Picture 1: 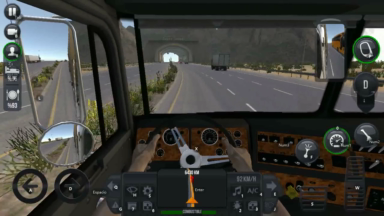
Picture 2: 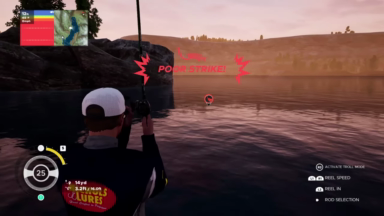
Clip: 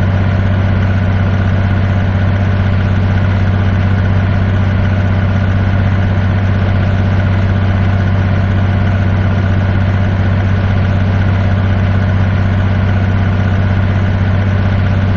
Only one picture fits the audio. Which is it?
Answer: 1